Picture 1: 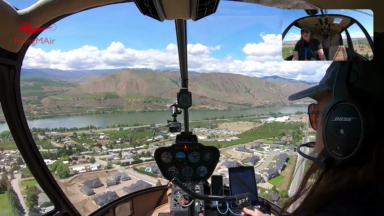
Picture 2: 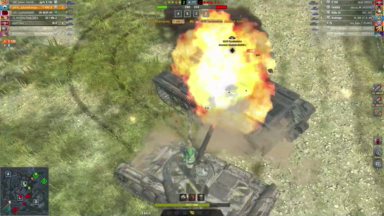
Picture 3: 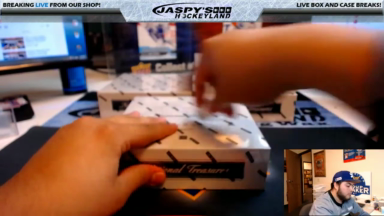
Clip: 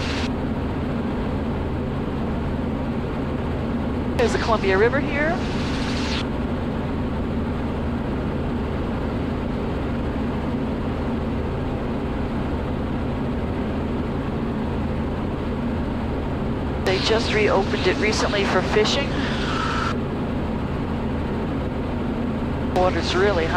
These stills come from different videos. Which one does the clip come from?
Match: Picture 1